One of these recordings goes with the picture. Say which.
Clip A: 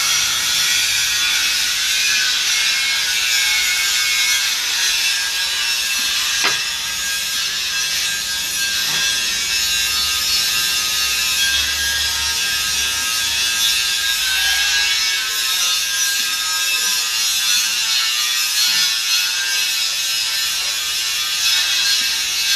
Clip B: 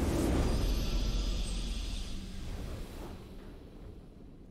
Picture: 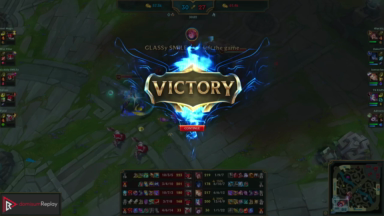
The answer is B